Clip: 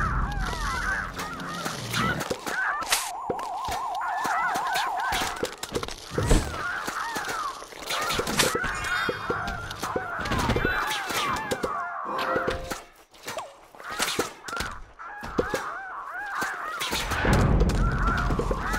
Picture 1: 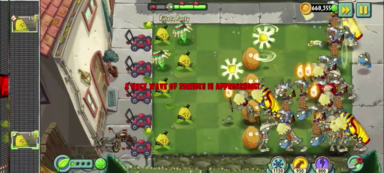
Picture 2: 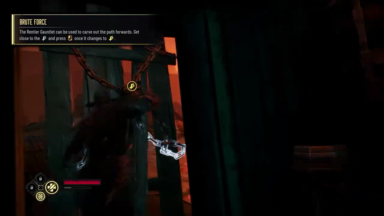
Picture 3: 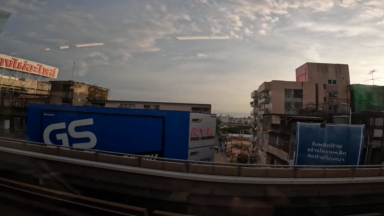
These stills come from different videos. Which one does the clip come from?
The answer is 1